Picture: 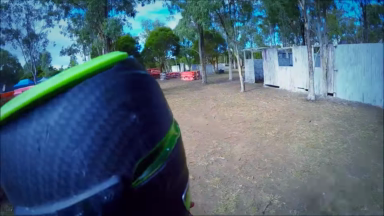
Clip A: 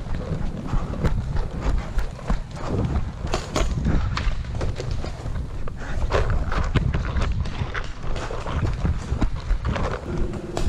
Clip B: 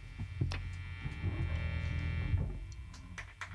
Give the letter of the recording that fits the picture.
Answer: A